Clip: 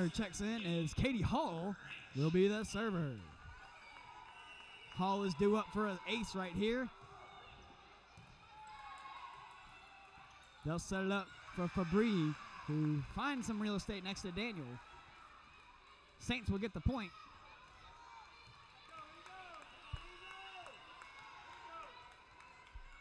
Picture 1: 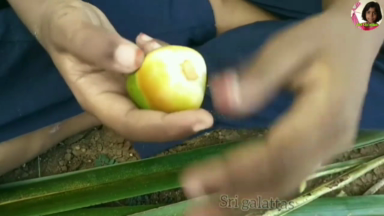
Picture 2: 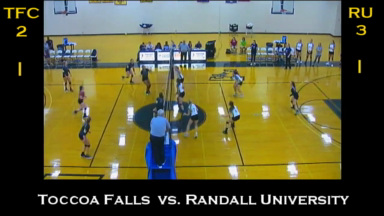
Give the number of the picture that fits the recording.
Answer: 2